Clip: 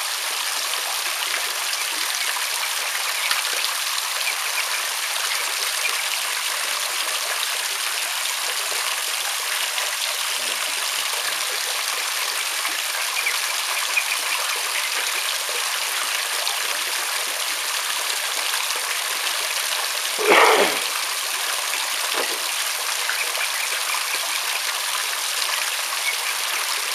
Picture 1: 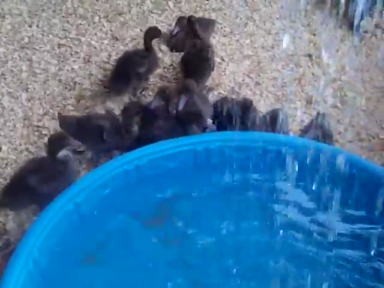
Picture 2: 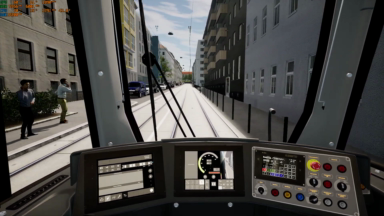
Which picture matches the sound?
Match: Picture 1